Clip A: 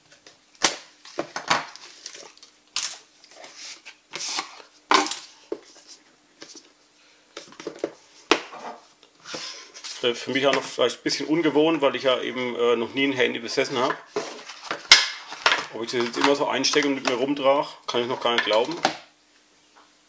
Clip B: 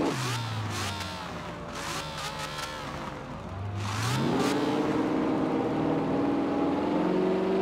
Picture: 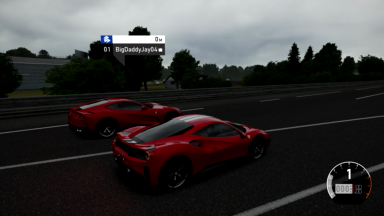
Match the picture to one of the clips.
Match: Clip B